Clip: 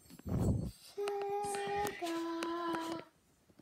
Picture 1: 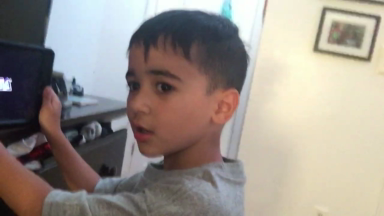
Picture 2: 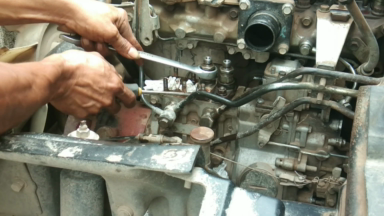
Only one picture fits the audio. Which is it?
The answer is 1